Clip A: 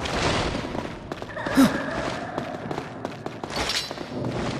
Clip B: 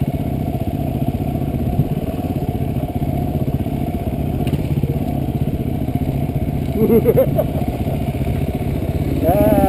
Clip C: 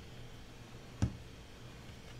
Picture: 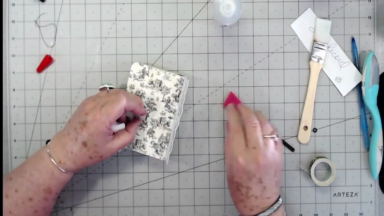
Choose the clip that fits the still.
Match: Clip C